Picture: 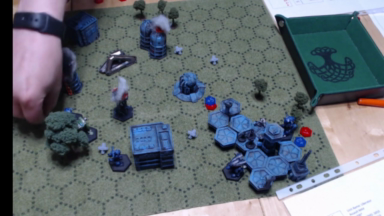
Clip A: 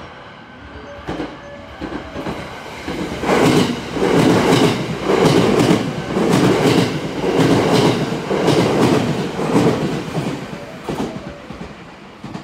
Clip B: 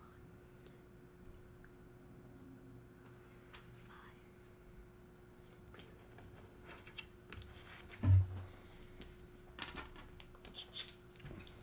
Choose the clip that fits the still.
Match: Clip B